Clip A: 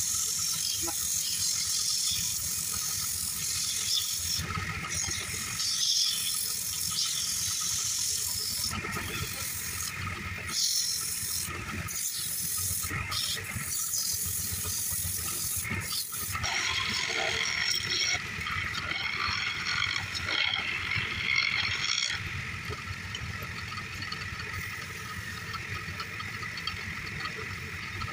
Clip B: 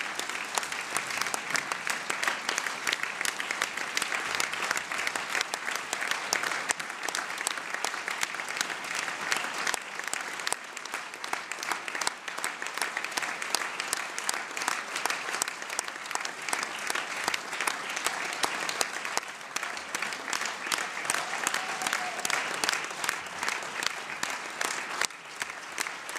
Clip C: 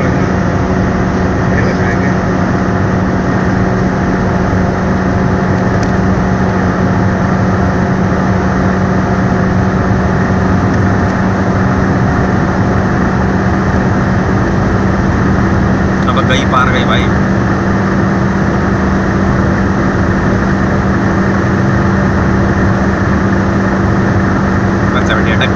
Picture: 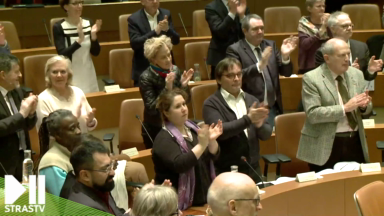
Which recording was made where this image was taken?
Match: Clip B